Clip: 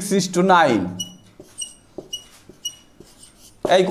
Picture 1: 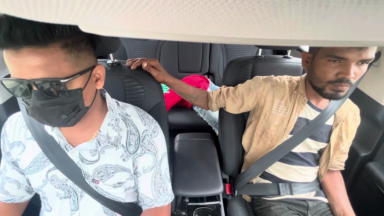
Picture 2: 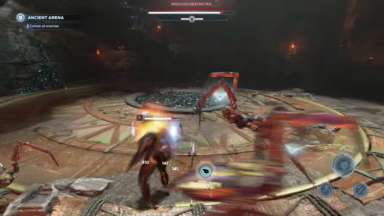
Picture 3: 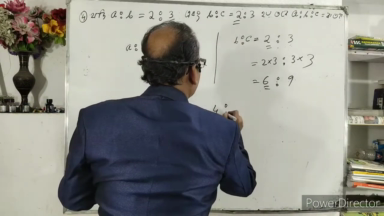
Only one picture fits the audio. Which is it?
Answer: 3